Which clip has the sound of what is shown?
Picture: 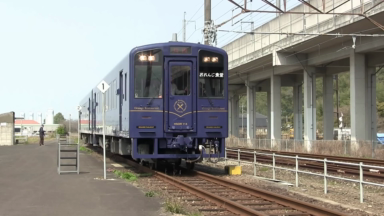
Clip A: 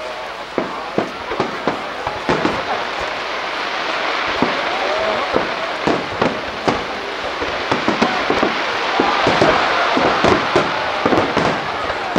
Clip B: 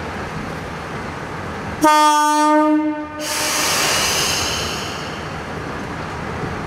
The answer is B